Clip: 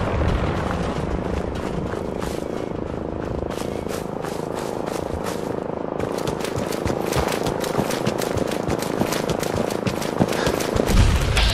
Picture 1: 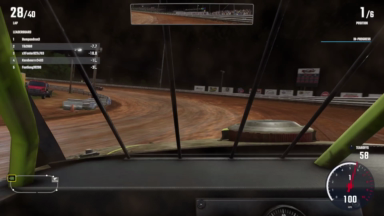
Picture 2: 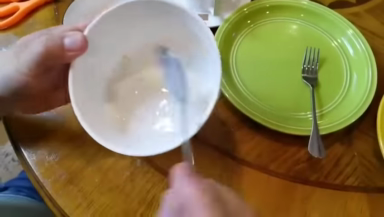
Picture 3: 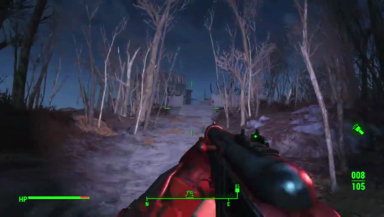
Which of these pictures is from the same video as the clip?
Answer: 3